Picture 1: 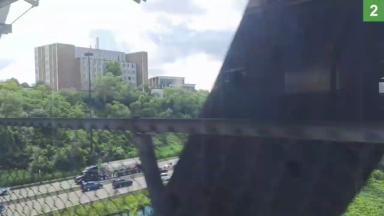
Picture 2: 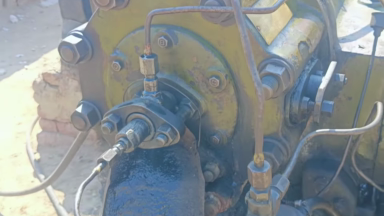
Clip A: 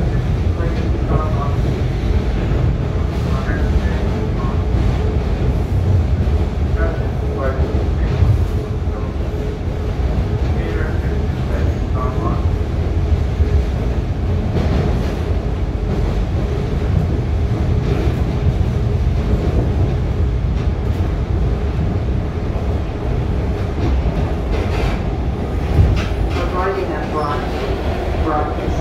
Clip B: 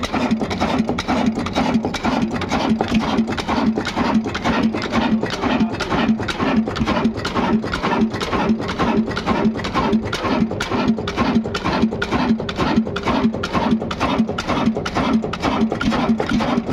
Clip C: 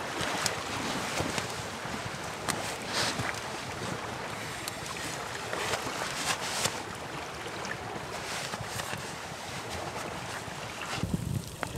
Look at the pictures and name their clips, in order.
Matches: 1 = A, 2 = B